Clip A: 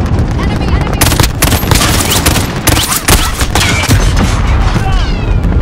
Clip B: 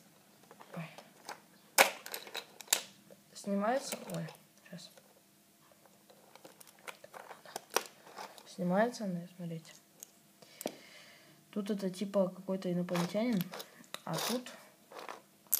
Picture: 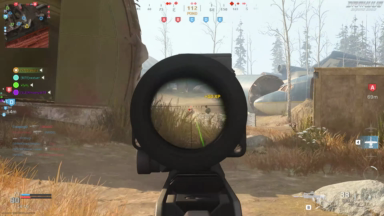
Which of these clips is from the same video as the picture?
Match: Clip A